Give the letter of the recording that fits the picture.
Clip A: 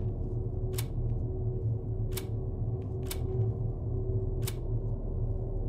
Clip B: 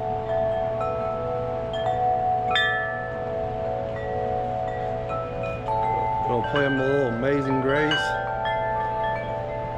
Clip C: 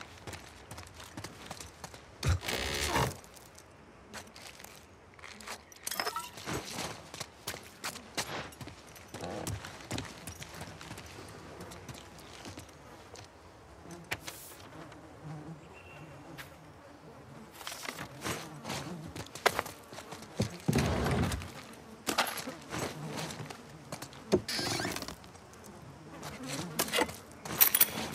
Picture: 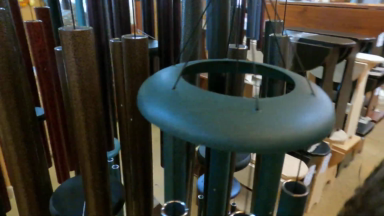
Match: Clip B